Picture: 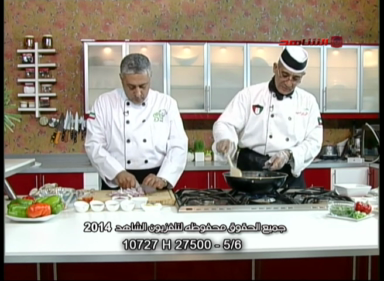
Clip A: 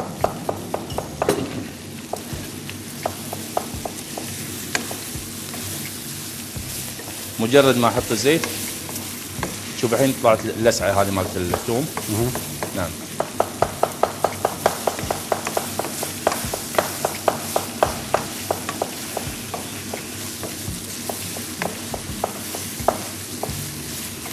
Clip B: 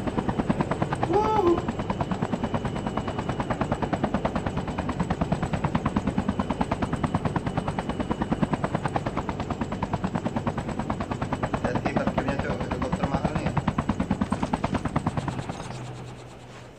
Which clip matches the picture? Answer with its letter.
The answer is A